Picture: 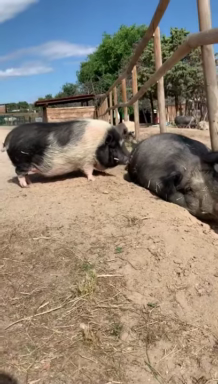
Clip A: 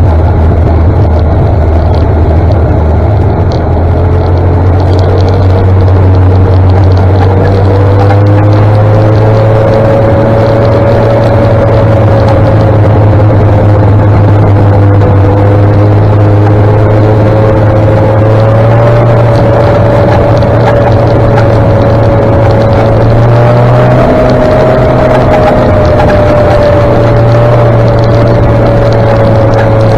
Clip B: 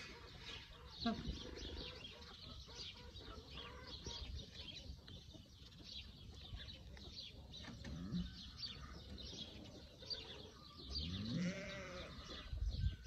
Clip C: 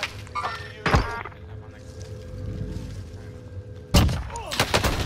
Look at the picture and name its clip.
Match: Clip B